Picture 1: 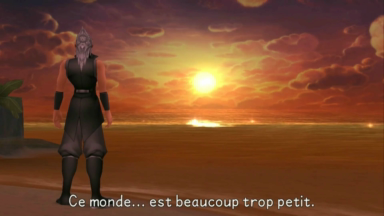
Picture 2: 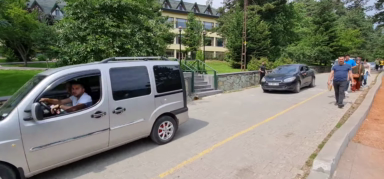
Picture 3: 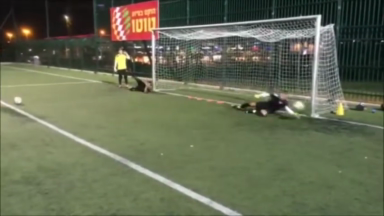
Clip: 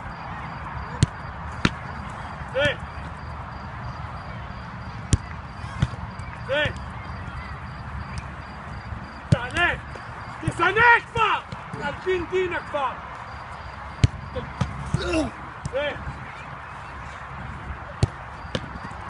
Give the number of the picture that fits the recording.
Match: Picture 3